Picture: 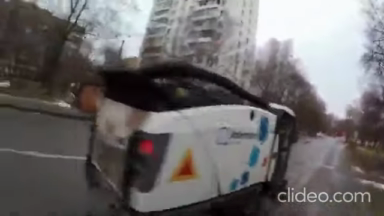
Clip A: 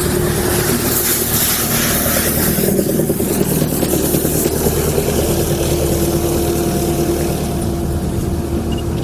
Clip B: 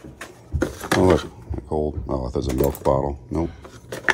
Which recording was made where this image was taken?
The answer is A